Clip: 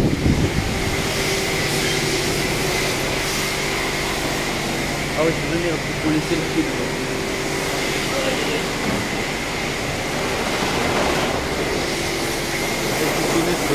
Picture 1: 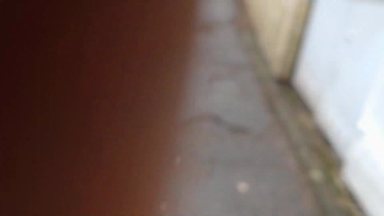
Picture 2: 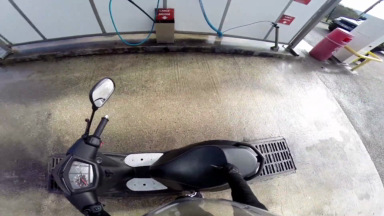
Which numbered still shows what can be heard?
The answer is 2